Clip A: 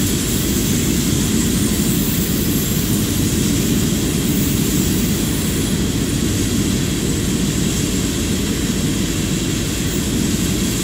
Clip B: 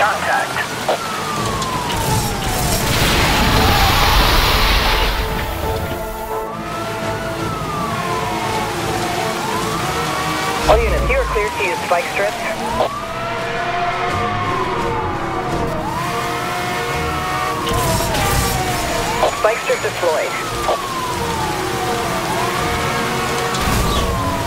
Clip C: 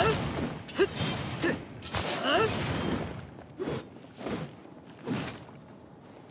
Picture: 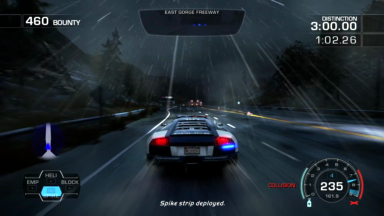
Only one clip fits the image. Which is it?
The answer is B